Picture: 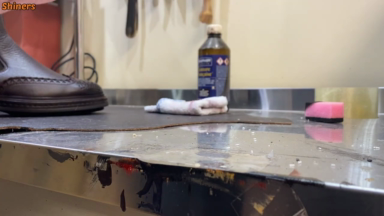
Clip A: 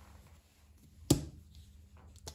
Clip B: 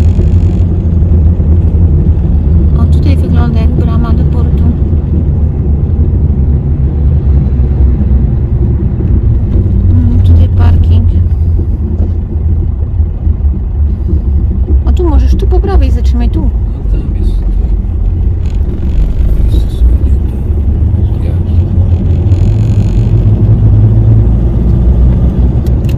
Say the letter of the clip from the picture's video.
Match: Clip A